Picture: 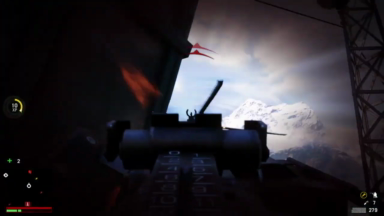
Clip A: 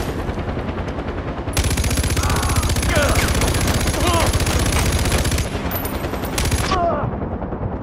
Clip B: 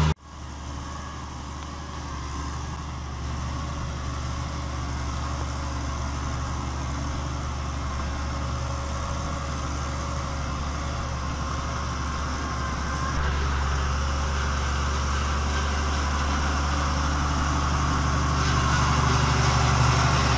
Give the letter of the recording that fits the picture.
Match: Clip A